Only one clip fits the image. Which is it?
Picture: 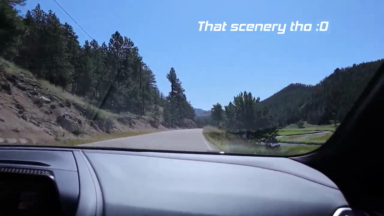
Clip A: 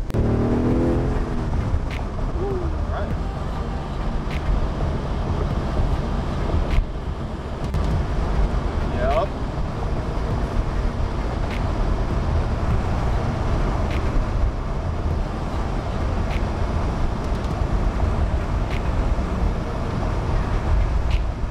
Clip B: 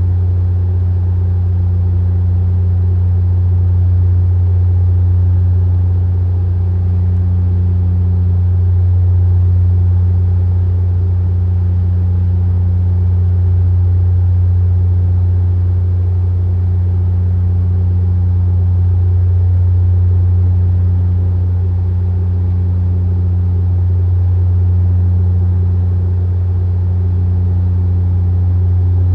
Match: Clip A